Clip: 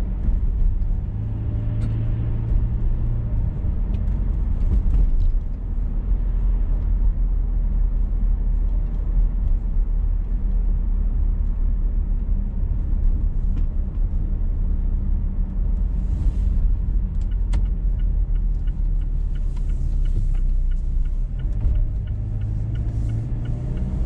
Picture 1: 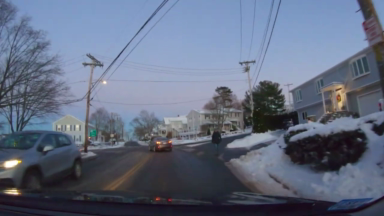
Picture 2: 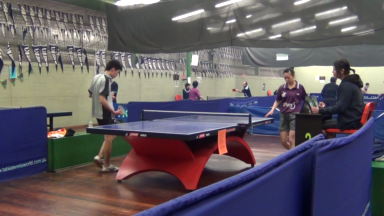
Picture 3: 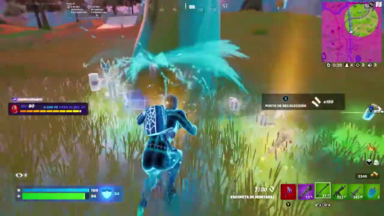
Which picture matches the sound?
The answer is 1